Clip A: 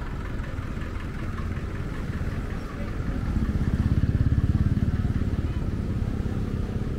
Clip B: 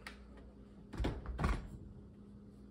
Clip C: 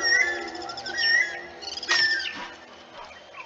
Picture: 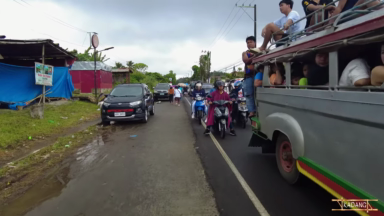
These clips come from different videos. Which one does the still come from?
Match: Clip A